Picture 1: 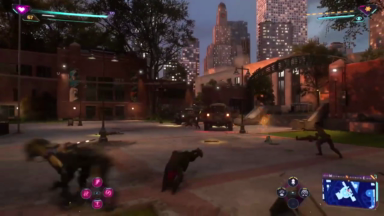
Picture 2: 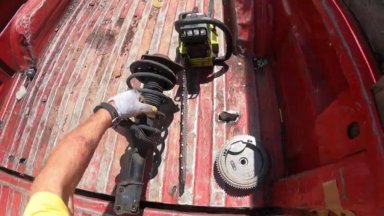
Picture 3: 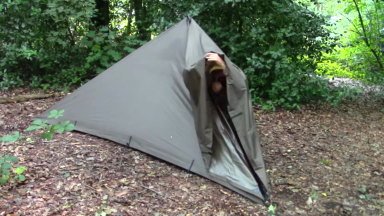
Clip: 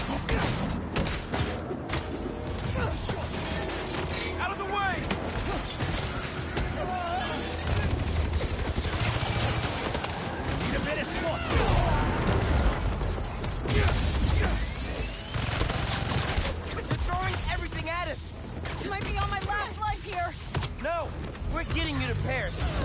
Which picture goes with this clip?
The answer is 1